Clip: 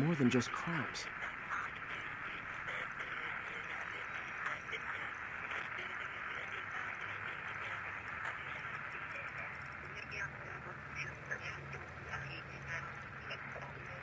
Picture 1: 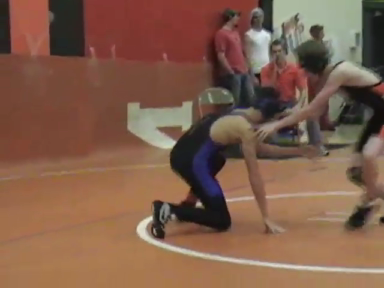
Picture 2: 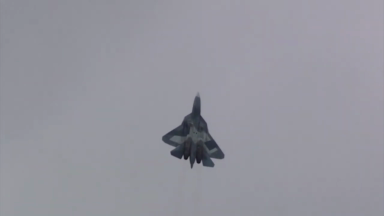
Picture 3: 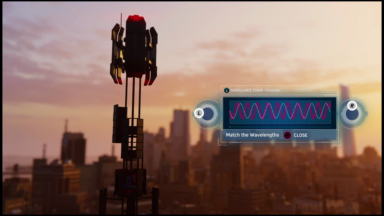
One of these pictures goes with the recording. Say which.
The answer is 3